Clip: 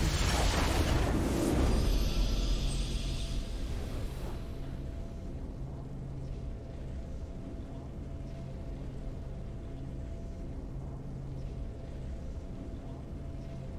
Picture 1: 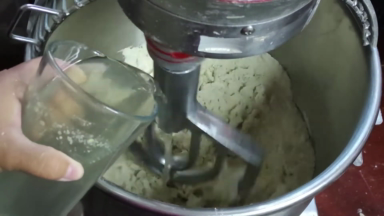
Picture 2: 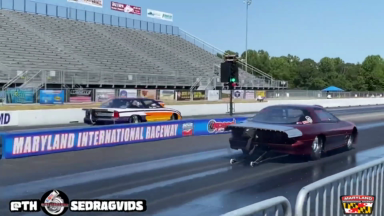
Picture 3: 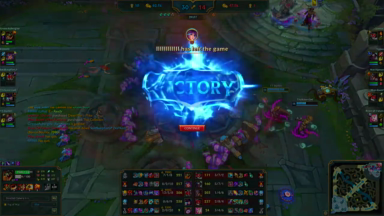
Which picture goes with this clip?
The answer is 3